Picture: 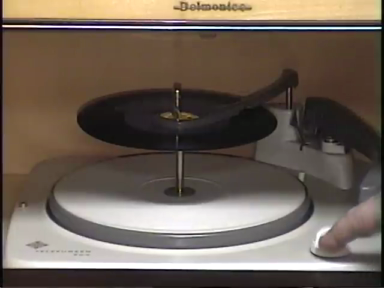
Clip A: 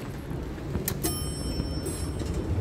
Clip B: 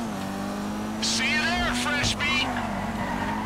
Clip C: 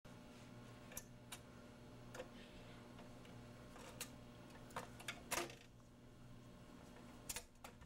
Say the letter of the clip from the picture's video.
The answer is C